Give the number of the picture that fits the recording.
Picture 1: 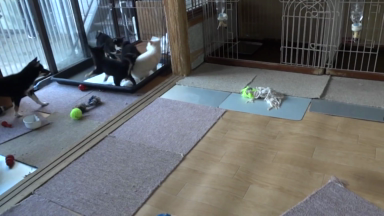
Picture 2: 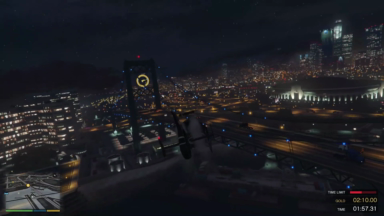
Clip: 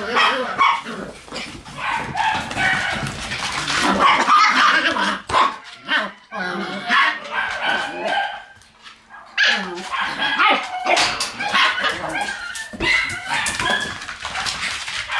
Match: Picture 1